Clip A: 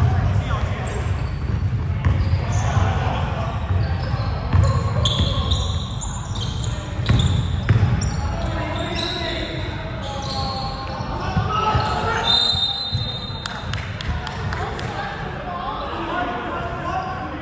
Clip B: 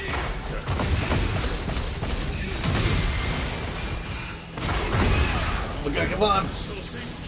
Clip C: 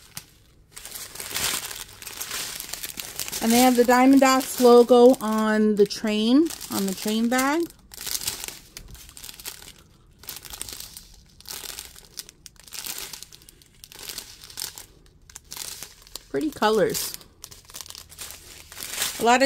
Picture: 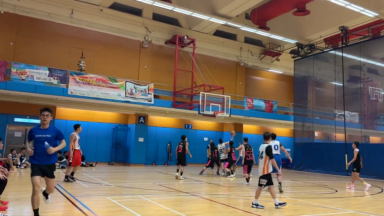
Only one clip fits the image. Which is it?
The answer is A